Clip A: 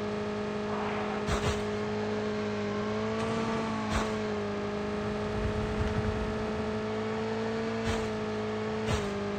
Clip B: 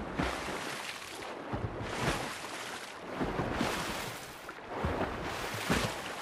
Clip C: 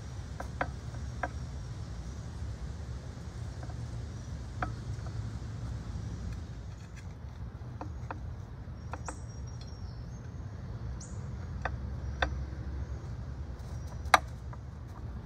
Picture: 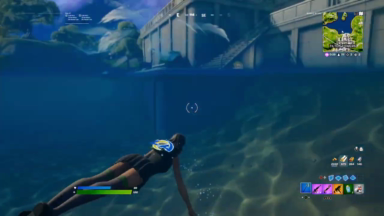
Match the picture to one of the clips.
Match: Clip B